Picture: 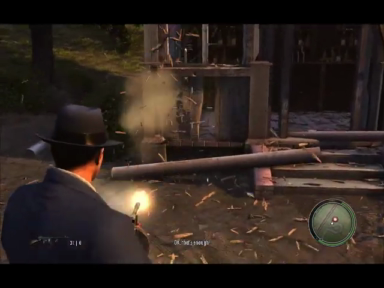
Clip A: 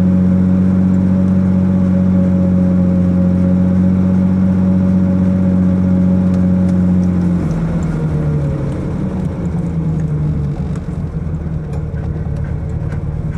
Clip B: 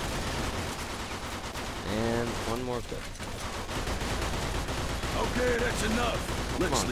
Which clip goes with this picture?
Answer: B